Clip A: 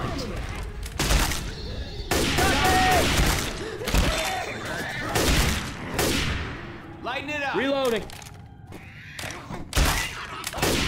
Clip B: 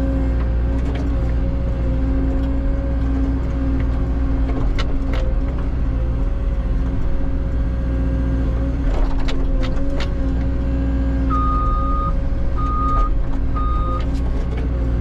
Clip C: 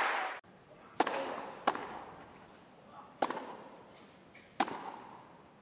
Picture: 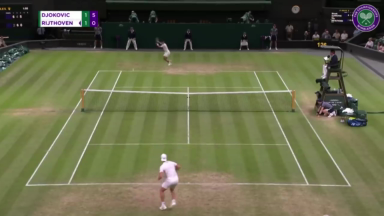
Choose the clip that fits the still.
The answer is C